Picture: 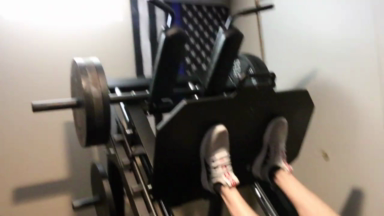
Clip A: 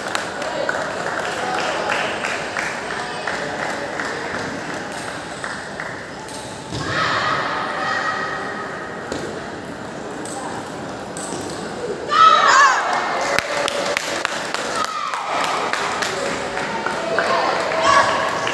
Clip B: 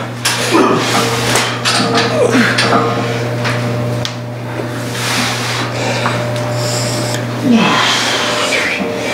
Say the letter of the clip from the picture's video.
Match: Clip B